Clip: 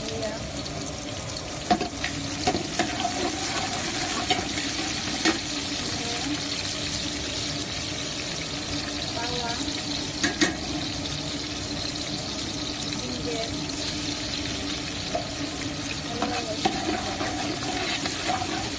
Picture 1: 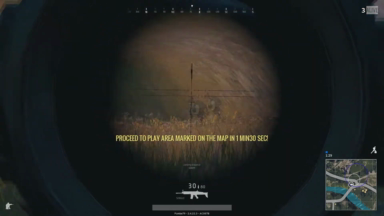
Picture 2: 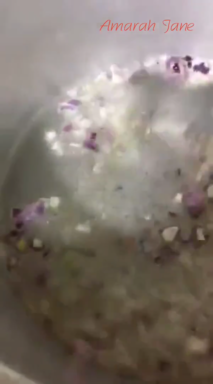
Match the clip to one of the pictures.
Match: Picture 2